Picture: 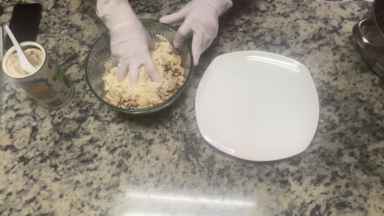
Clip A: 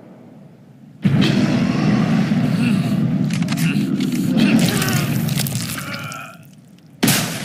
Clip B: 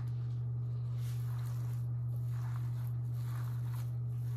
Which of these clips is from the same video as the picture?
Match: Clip B